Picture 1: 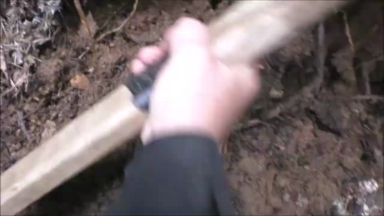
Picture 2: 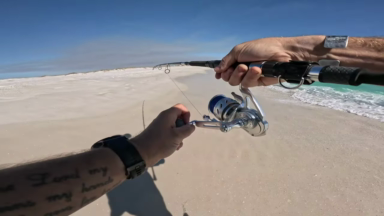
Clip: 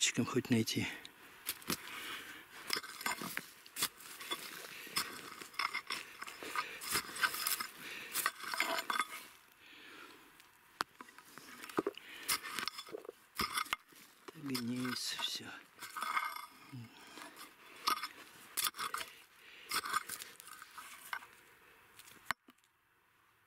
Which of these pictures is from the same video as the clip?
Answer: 1